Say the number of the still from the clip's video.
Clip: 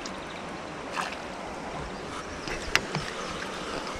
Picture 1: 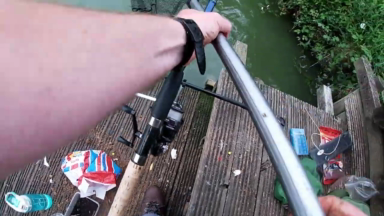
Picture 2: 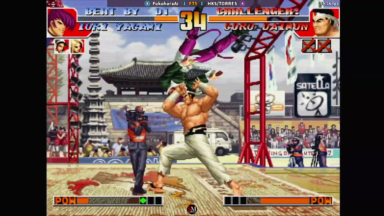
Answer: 1